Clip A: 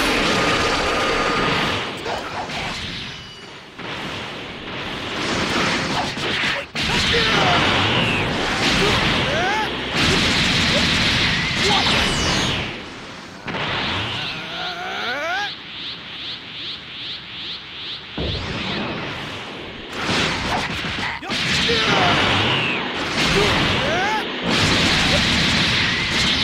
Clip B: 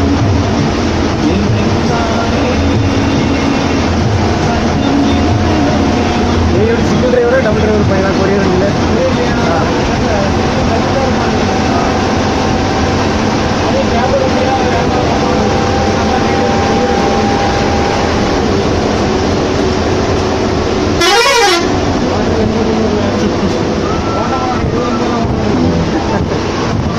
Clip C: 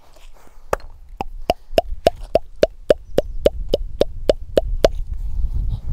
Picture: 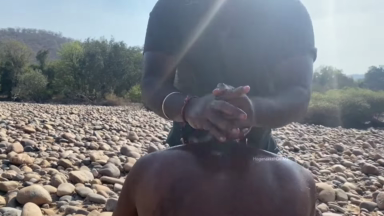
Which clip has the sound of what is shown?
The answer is C